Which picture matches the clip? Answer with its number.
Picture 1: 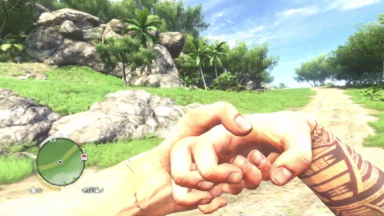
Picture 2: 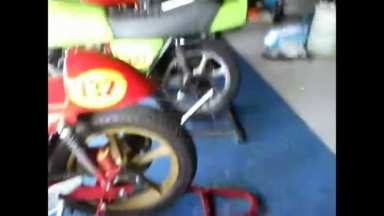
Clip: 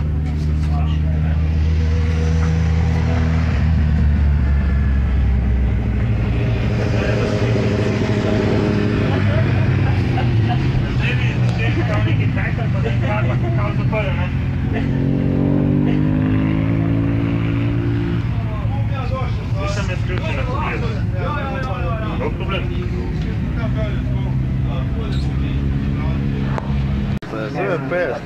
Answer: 2